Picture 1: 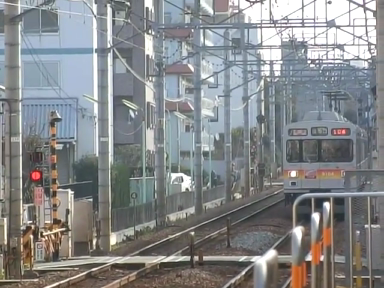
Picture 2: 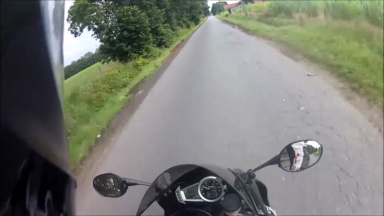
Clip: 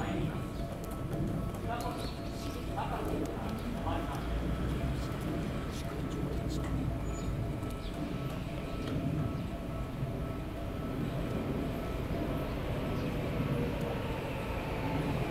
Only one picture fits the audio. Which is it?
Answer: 1